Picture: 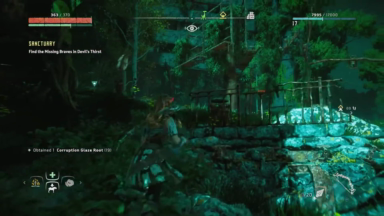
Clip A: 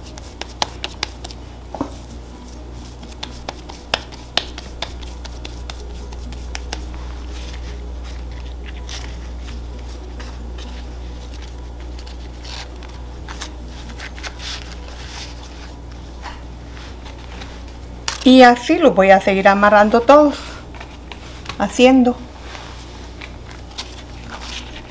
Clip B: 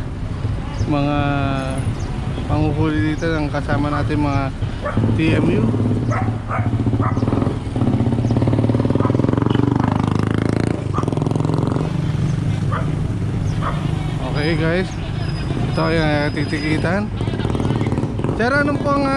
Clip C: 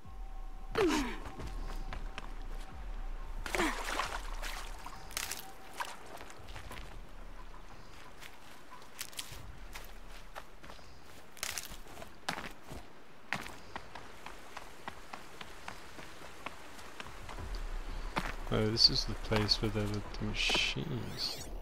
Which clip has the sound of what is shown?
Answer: C